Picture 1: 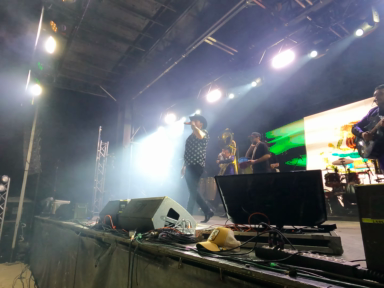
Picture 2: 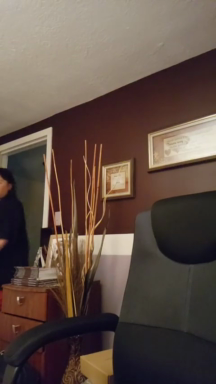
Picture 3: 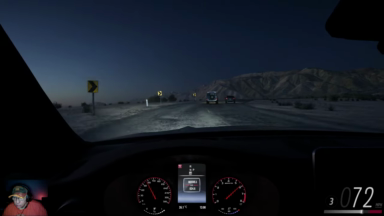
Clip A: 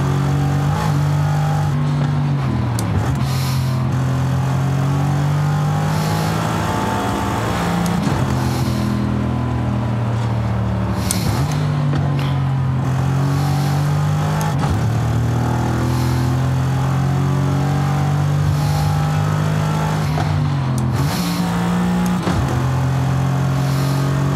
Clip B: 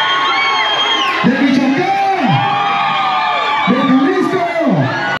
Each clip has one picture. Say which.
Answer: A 3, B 1